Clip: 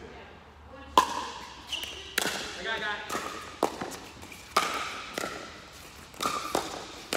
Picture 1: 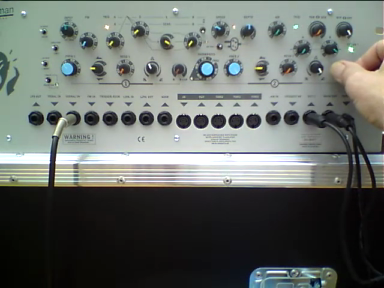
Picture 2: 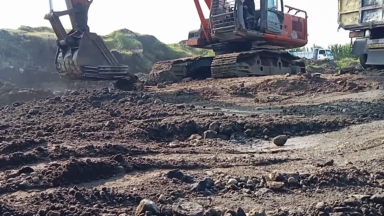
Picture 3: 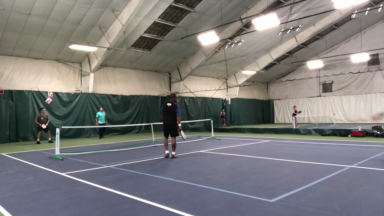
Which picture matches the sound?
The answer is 3